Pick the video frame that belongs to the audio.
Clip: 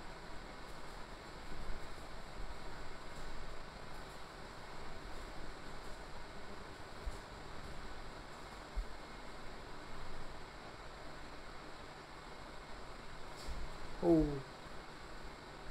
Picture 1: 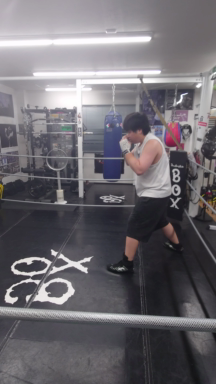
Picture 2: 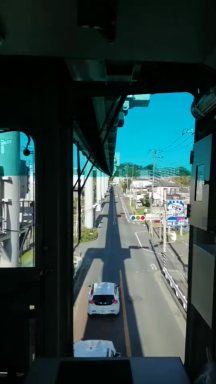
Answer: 1